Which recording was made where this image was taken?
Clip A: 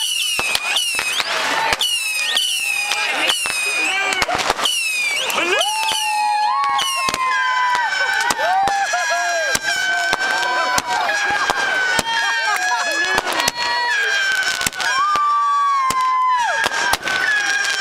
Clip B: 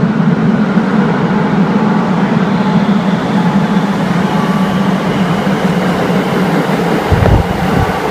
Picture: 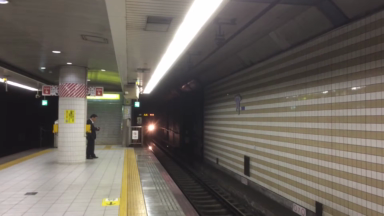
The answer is B